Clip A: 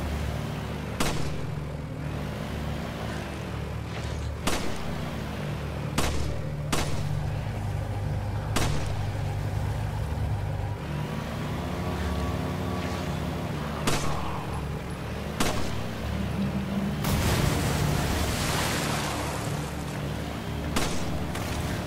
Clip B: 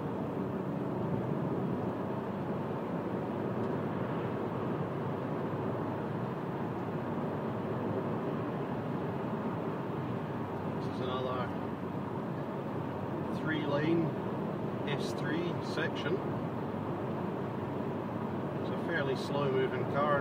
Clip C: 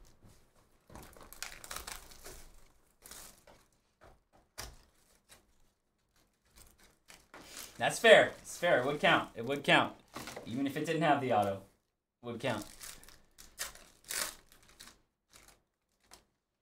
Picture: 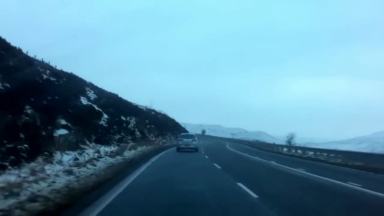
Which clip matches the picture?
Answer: B